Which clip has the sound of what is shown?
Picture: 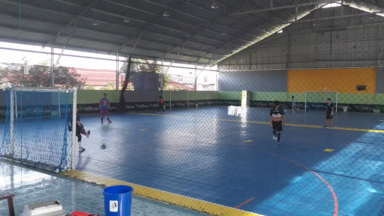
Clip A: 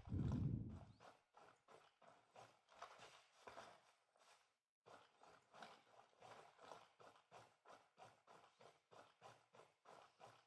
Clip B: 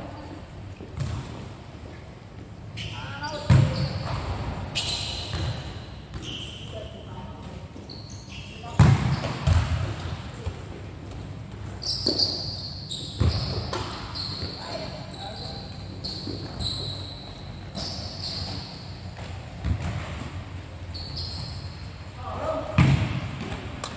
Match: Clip B